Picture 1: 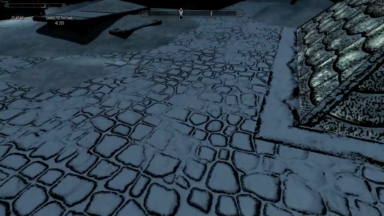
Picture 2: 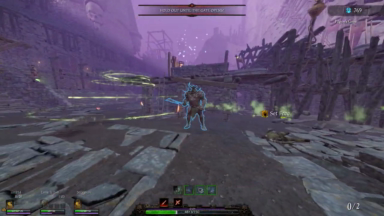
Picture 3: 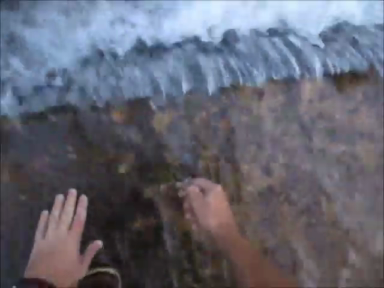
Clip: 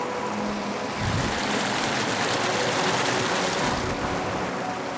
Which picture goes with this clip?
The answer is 3